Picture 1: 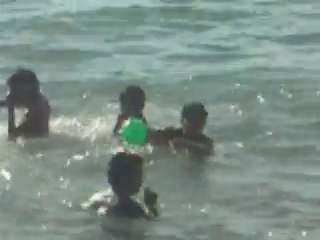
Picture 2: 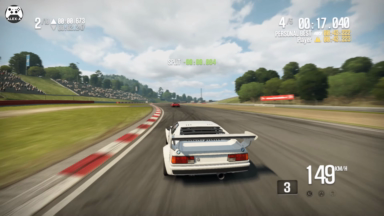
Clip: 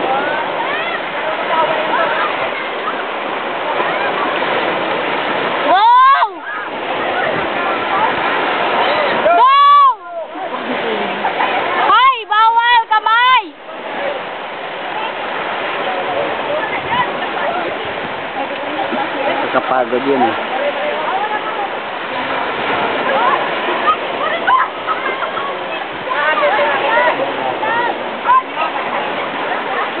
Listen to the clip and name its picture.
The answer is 1